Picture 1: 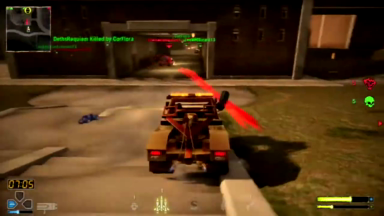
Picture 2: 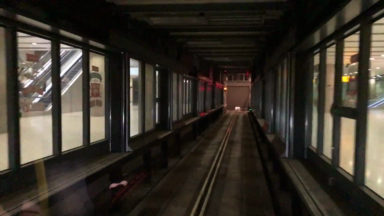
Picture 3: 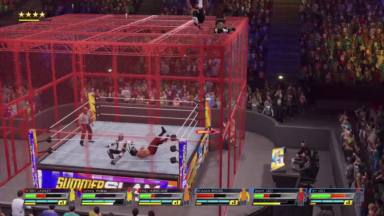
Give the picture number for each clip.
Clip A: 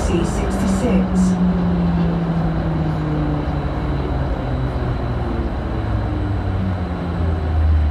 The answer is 2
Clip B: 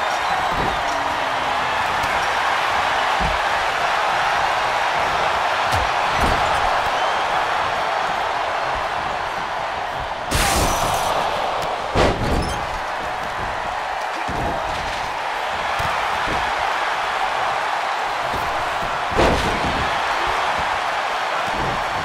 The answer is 3